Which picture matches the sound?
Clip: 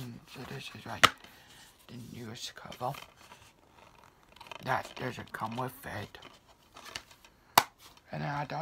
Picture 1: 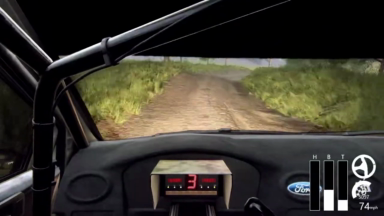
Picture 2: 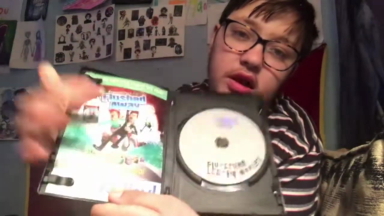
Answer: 2